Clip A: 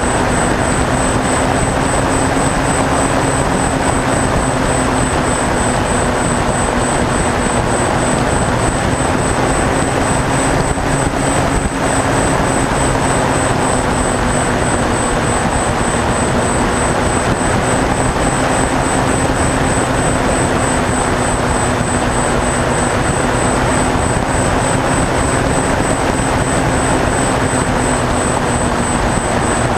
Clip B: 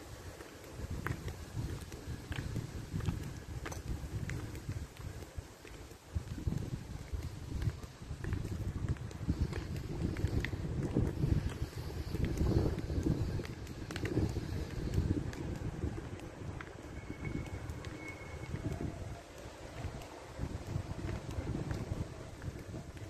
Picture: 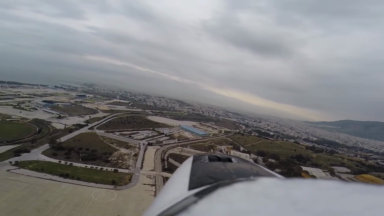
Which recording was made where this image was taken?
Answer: A